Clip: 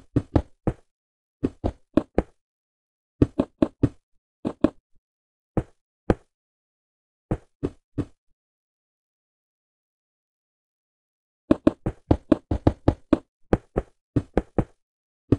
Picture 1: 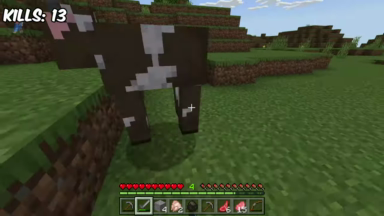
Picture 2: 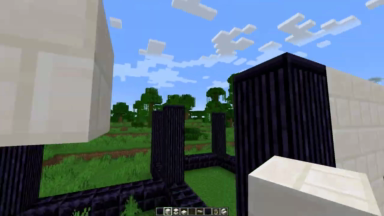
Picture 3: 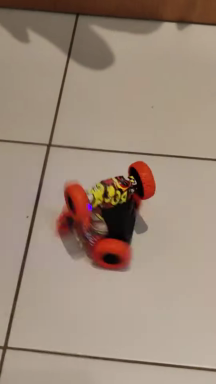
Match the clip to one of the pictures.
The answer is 2